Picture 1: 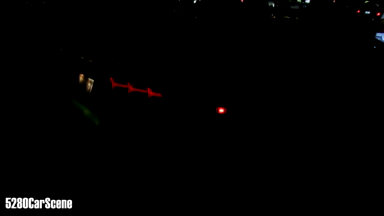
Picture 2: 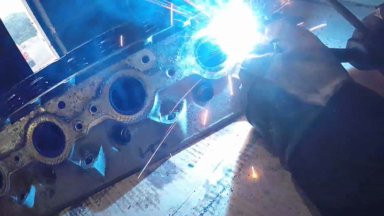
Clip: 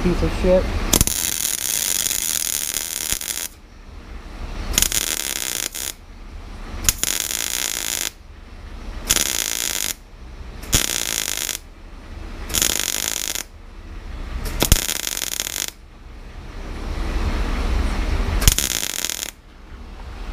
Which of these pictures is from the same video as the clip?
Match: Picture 2